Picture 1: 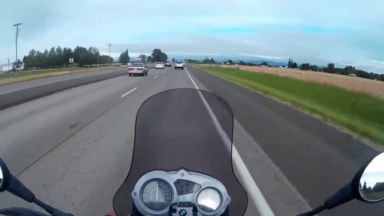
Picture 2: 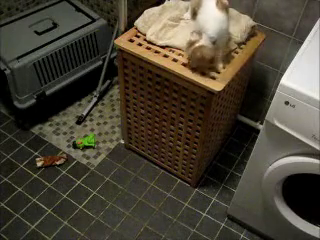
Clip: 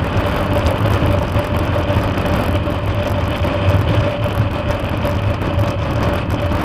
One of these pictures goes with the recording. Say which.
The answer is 1